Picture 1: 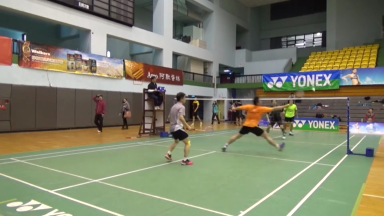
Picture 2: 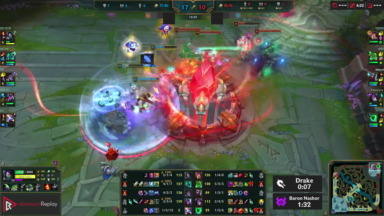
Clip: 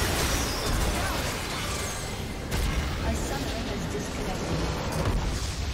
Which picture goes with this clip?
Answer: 2